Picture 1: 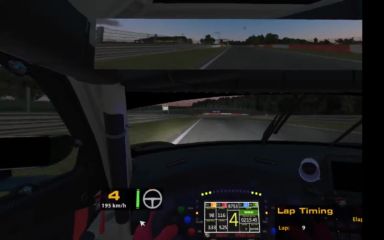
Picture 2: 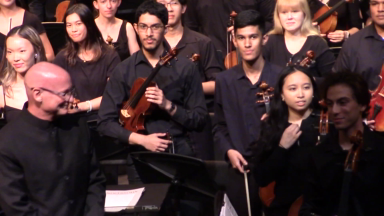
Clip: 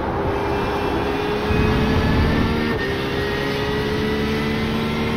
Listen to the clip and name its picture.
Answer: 1